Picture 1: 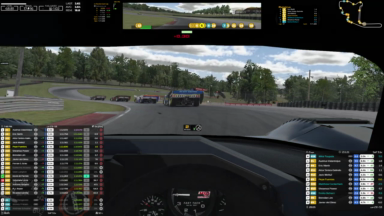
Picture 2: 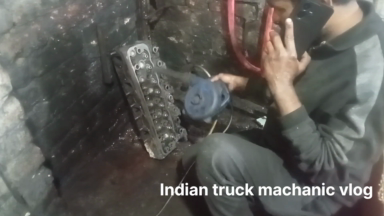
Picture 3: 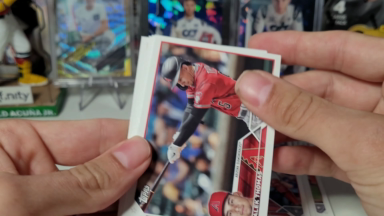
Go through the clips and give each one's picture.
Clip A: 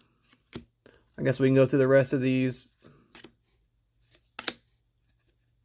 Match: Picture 3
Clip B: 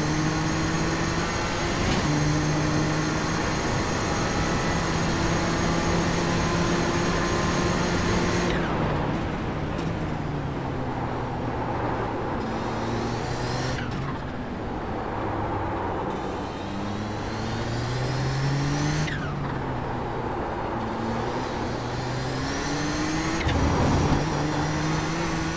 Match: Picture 1